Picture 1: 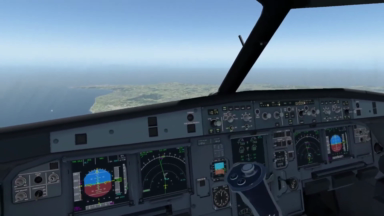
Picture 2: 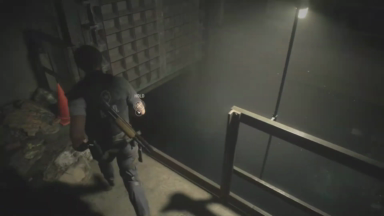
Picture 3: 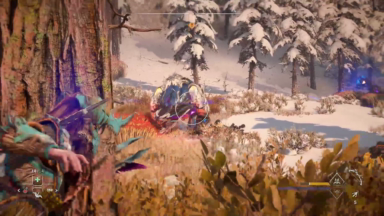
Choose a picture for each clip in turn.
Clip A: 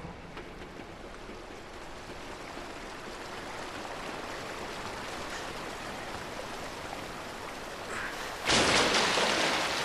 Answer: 2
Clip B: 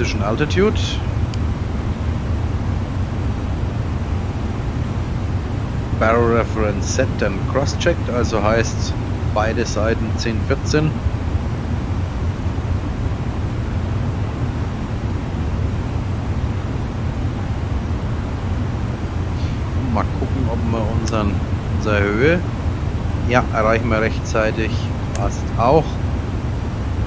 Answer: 1